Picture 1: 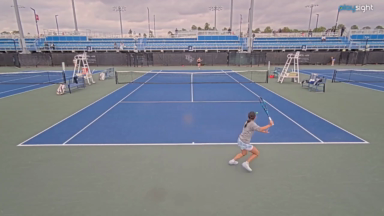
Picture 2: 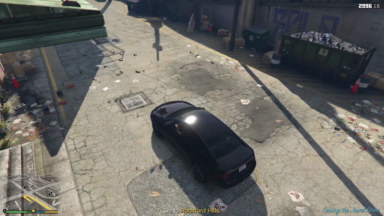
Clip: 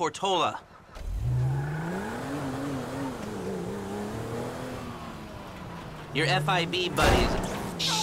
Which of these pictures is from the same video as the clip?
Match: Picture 2